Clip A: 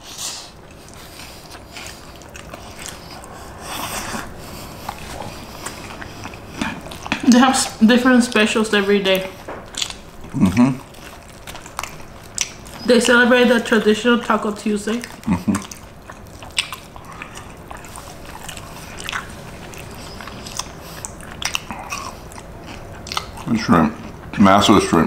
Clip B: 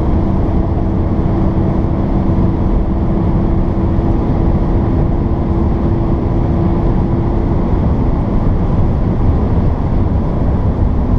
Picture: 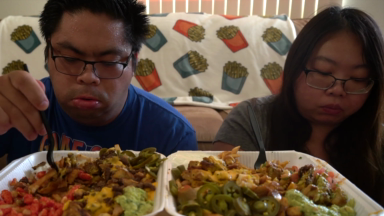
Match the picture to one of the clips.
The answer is A